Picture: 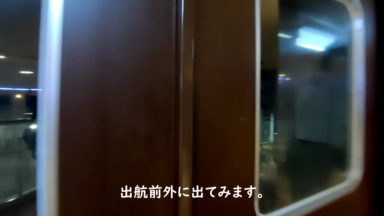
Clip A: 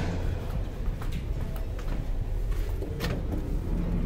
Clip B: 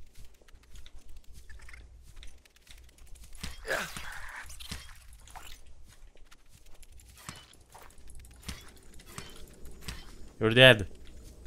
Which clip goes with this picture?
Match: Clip A